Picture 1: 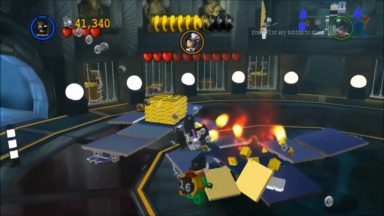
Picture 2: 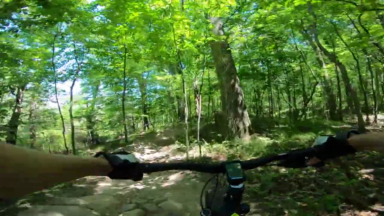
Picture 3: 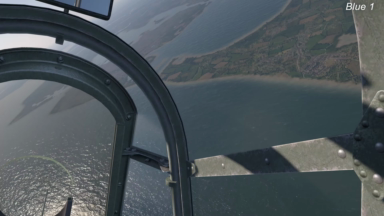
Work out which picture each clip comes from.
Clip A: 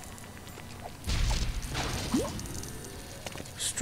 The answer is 1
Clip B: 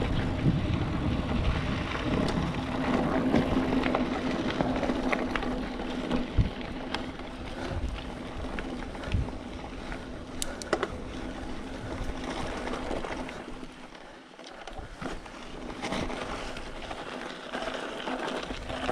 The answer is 2